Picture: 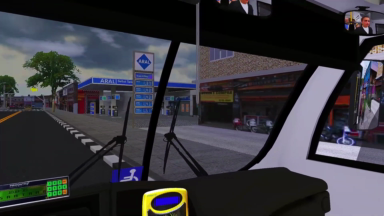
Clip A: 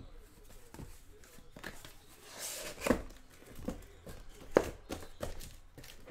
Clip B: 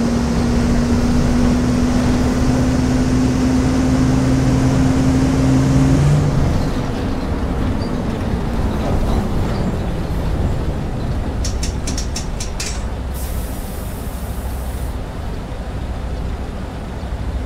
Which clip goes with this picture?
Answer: B